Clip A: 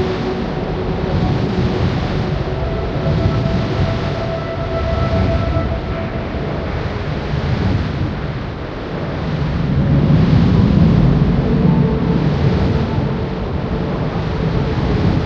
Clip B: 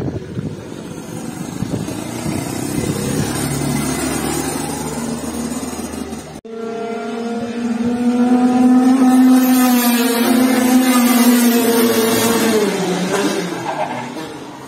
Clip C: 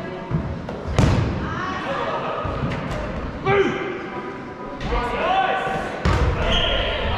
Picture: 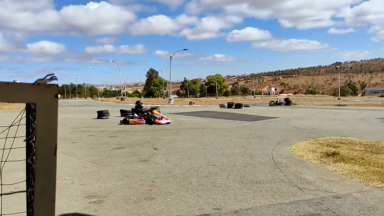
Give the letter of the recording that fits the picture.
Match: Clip B